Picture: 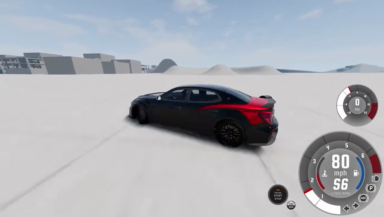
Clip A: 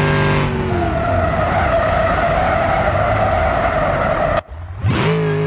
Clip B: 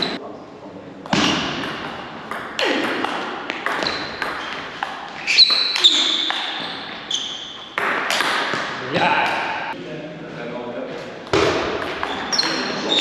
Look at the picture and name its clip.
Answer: A